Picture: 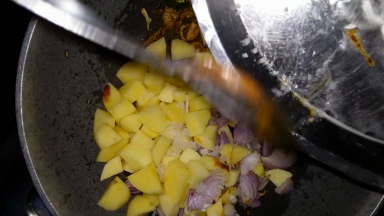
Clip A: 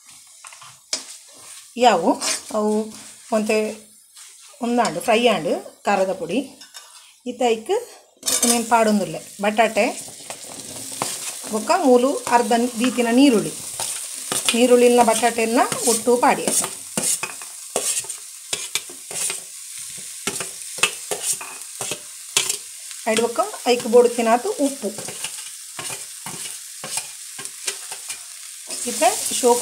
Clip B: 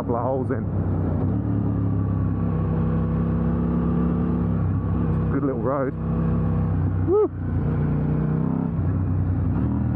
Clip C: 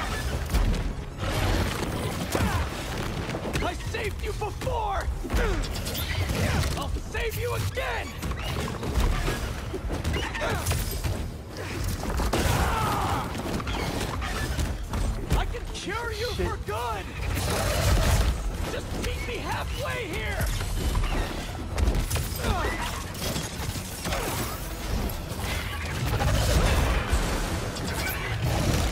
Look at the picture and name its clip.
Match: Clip A